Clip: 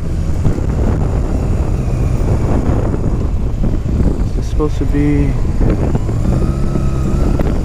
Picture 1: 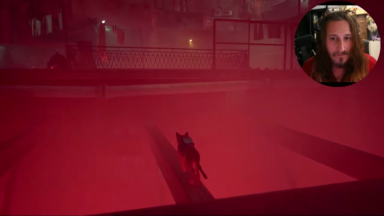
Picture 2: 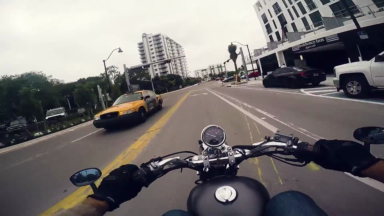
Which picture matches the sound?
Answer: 2